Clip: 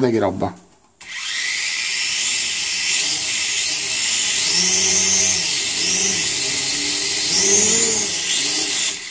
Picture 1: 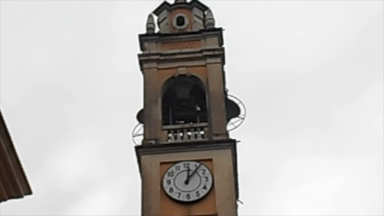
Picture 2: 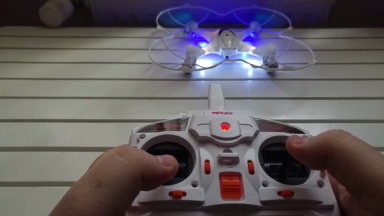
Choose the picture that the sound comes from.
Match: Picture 2